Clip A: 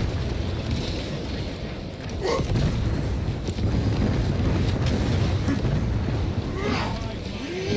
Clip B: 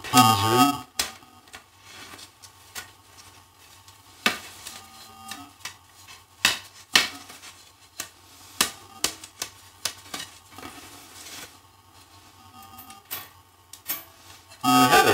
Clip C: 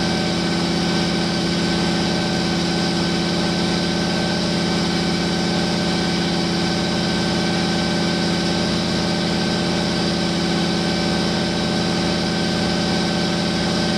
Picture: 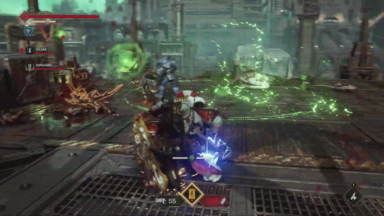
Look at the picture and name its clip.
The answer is A